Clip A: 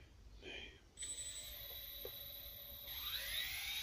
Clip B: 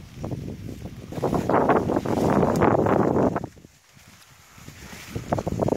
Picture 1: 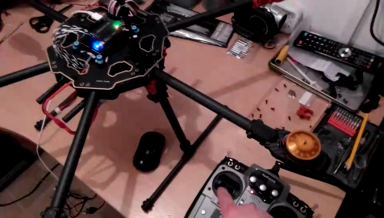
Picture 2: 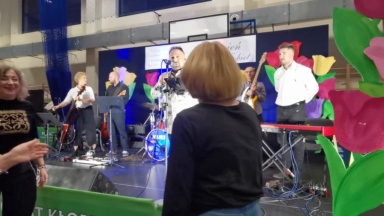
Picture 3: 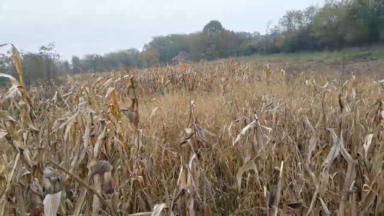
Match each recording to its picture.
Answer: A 1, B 3